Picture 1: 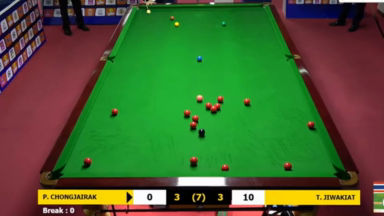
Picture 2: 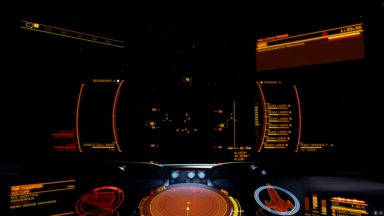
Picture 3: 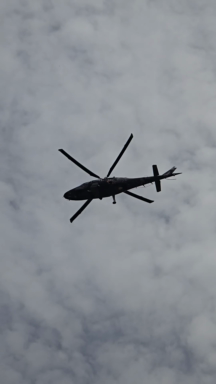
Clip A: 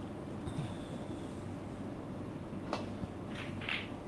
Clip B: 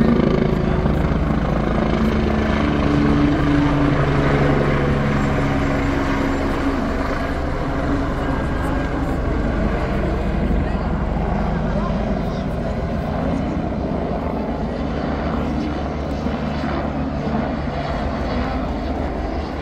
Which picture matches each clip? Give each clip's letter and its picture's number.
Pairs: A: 1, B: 3